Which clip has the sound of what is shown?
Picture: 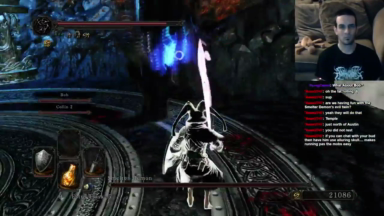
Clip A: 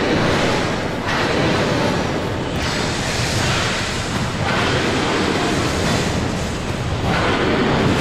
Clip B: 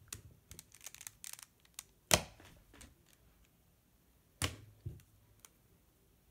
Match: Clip A